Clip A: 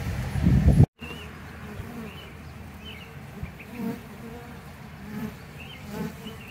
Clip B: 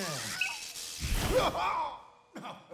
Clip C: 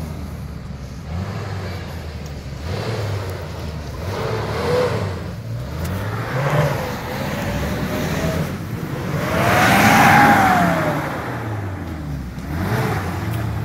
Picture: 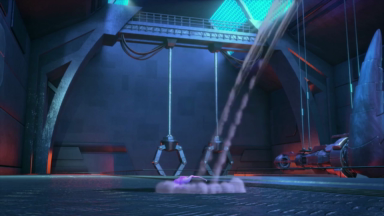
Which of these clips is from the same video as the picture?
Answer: B